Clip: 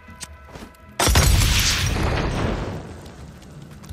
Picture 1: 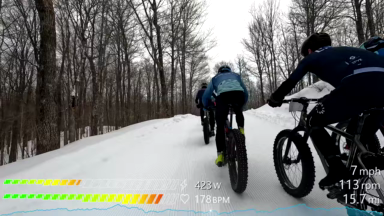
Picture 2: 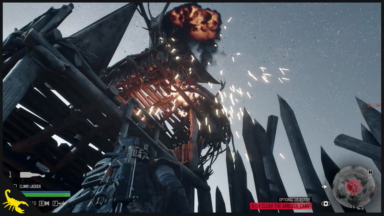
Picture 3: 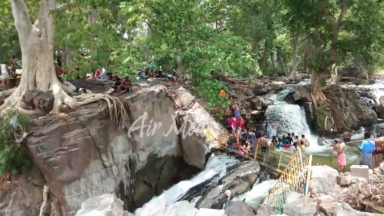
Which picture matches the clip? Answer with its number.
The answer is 2